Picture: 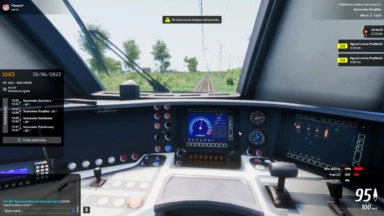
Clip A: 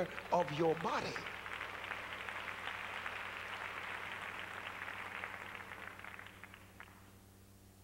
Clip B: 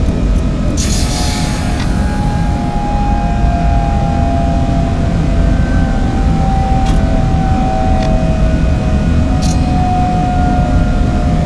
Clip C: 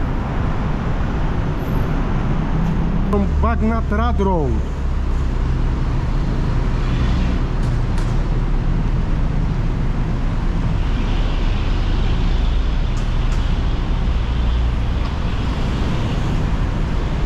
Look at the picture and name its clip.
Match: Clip B